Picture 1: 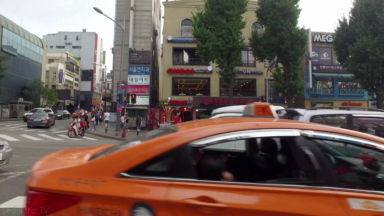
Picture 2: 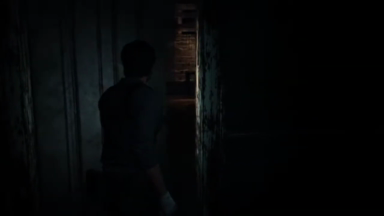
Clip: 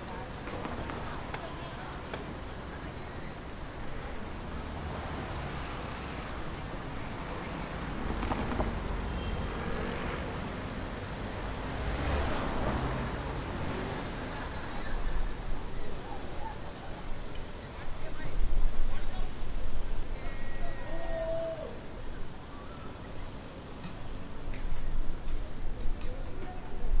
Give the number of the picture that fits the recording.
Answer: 1